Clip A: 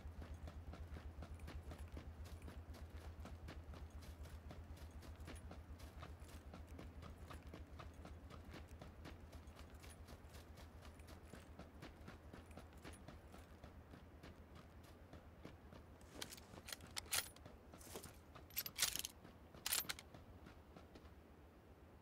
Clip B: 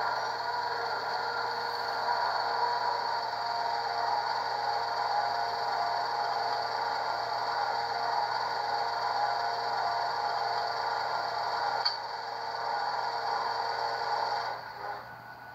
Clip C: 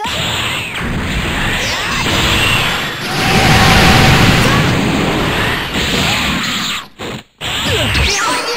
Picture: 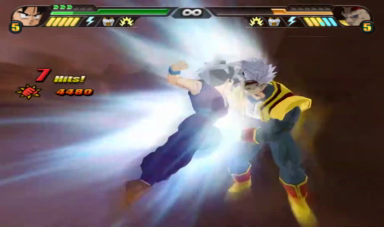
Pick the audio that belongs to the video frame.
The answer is C